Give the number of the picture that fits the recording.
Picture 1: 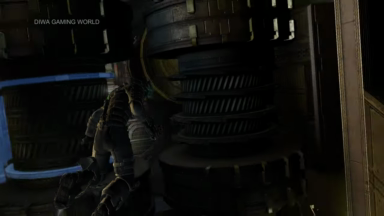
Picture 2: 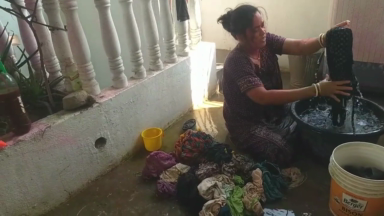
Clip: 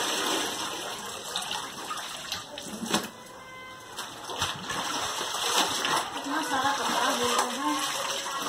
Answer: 2